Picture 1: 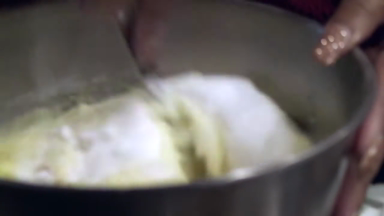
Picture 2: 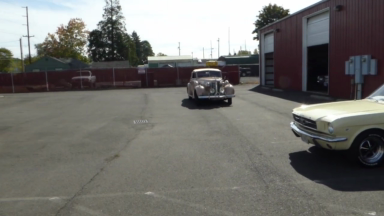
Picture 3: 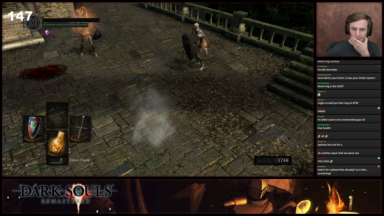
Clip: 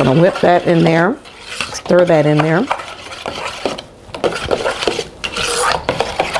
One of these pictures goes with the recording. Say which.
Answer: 1